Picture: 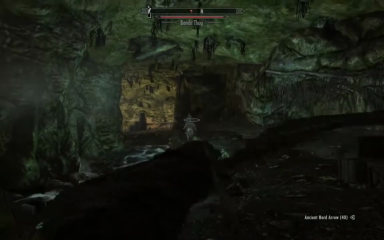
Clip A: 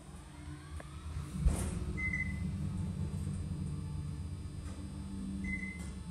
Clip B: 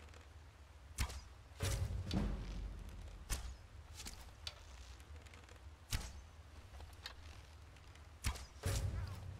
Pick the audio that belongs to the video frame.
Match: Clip B